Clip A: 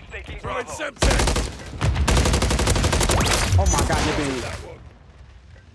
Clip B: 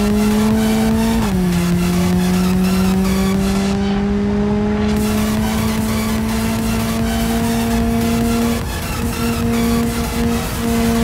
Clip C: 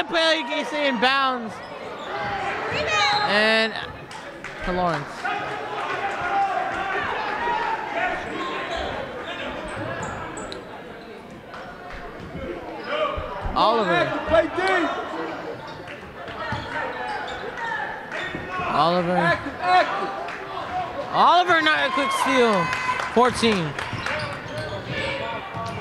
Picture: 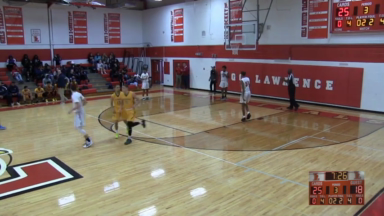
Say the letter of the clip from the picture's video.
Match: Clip C